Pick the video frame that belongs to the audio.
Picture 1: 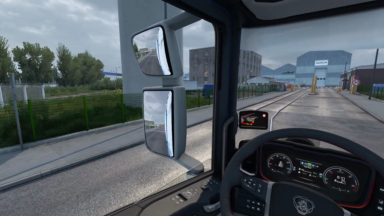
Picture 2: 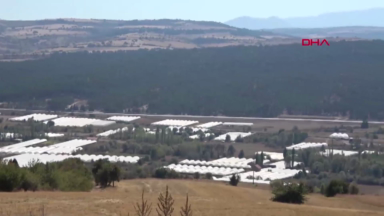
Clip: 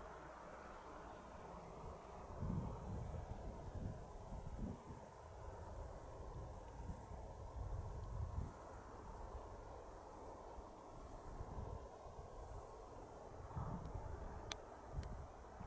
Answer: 2